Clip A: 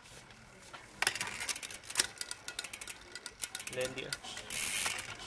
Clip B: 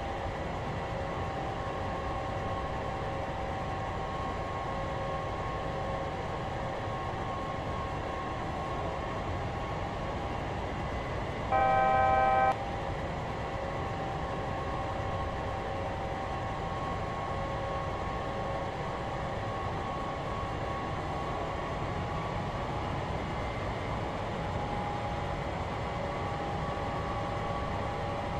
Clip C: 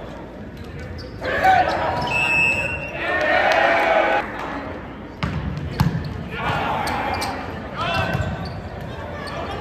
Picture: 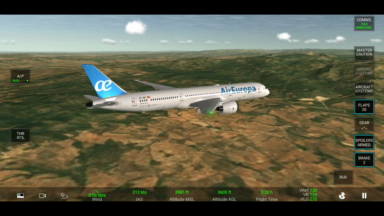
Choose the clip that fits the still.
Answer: B